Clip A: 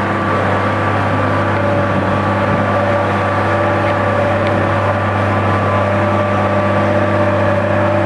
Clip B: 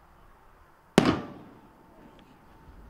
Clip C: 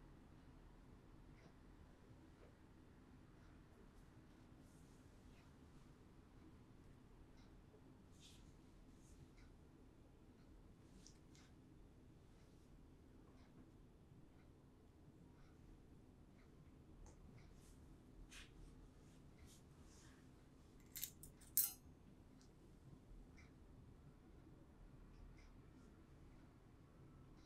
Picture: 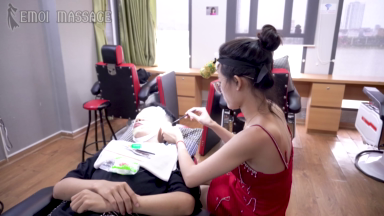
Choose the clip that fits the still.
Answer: C